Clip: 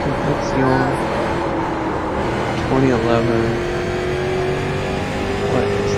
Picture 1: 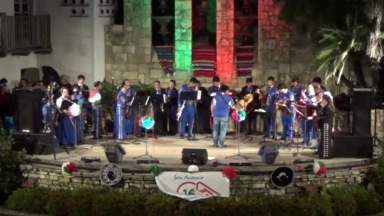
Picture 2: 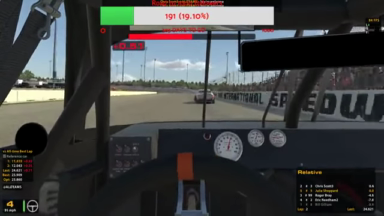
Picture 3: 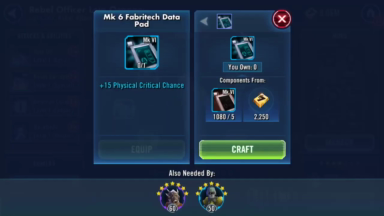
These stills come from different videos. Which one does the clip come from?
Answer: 2